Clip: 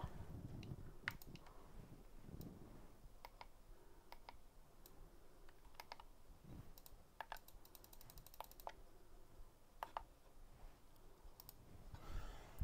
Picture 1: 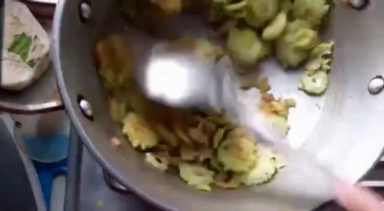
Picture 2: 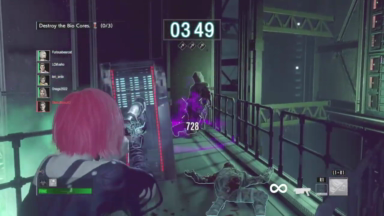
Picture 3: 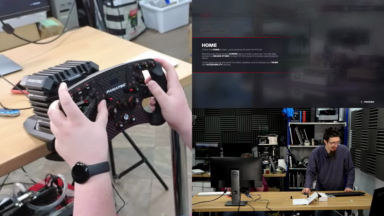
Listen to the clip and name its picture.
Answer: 3